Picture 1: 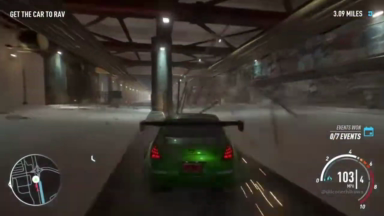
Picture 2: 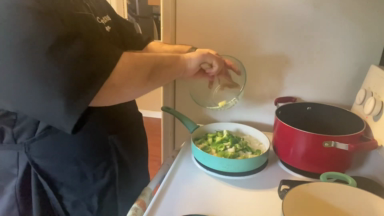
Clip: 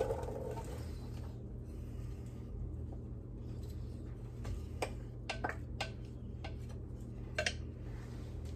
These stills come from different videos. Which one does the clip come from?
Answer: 2